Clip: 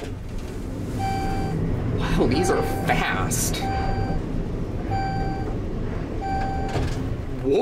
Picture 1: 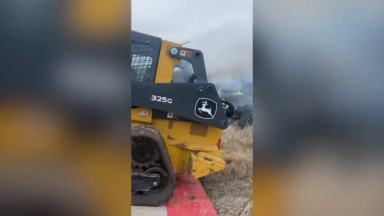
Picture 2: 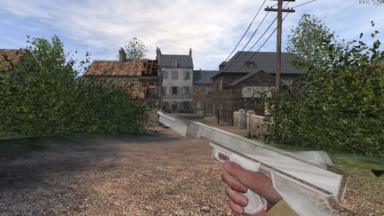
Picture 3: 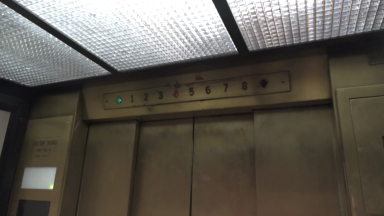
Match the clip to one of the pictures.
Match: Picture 3